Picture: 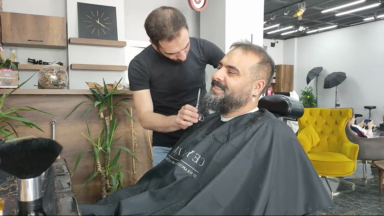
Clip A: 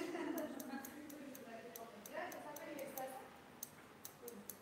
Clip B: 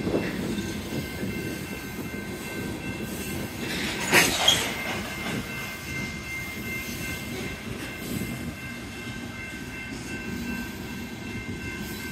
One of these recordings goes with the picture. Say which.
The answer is A